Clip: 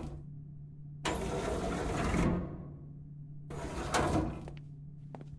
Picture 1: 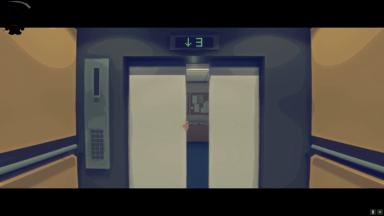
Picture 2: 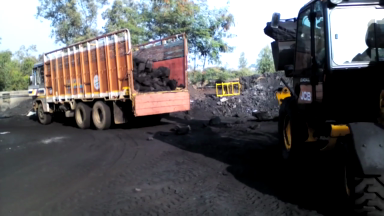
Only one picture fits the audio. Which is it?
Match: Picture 1